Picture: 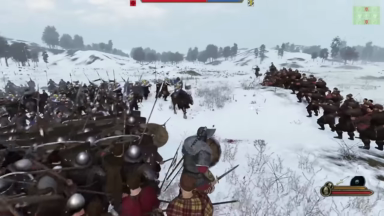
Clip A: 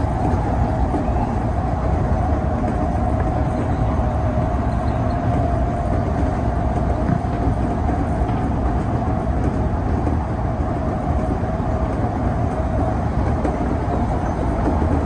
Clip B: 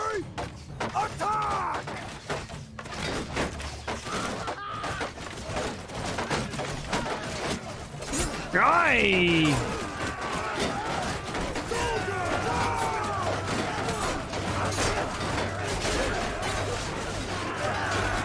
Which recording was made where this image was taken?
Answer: B